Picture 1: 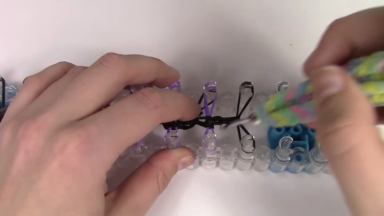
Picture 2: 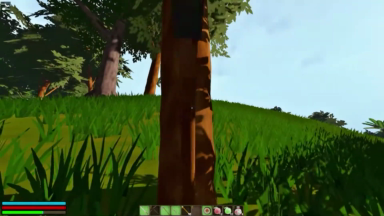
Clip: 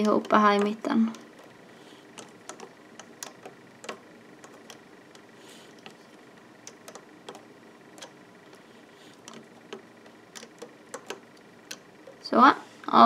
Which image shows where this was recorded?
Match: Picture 1